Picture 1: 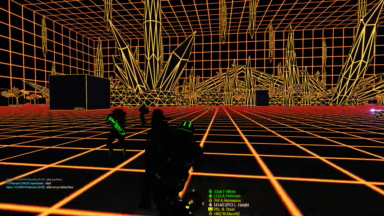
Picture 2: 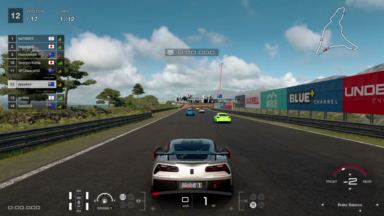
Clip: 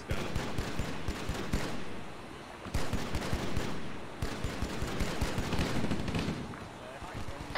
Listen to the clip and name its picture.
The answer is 1